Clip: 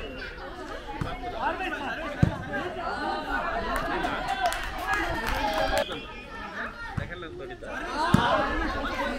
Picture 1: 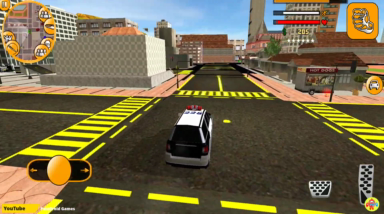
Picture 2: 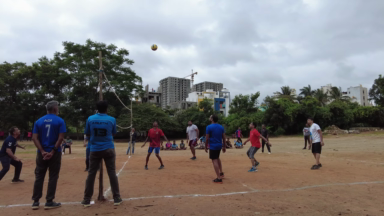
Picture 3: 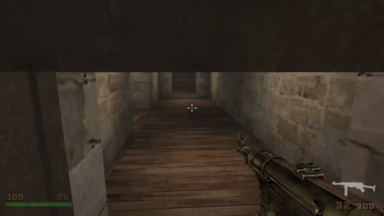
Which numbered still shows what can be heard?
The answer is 2